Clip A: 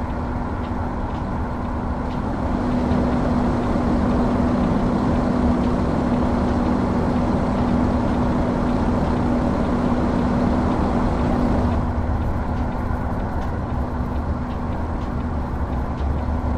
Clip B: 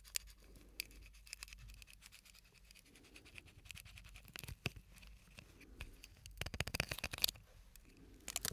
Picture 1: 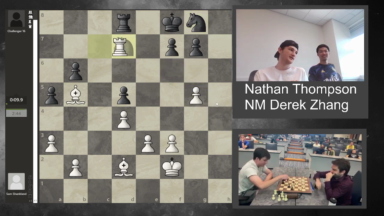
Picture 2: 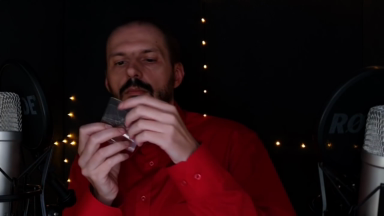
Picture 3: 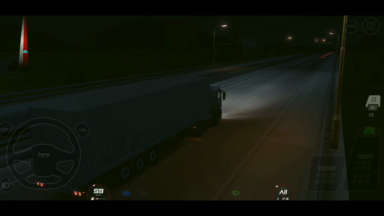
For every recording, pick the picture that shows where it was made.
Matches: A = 3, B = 2